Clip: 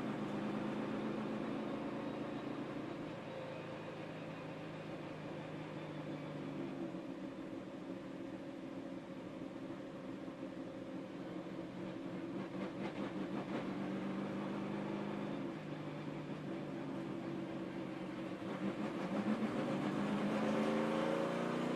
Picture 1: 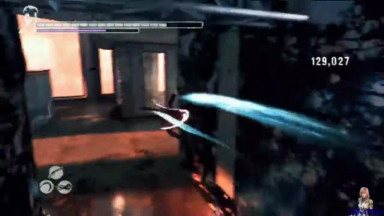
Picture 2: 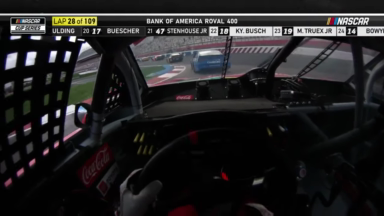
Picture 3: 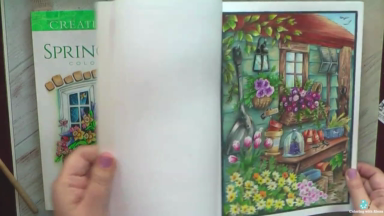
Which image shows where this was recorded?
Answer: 2